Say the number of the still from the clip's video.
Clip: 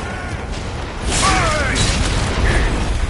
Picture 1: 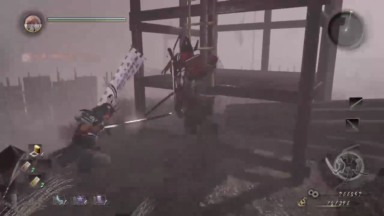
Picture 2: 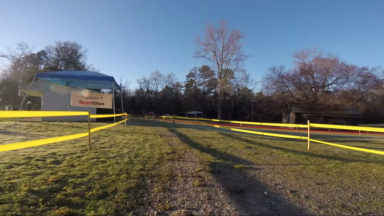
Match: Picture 1